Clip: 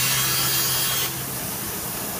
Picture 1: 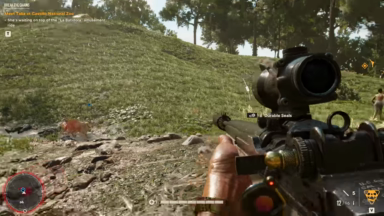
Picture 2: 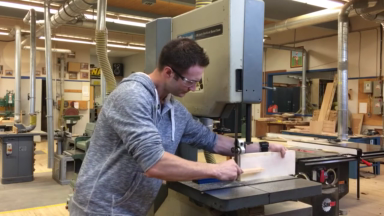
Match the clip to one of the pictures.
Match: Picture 2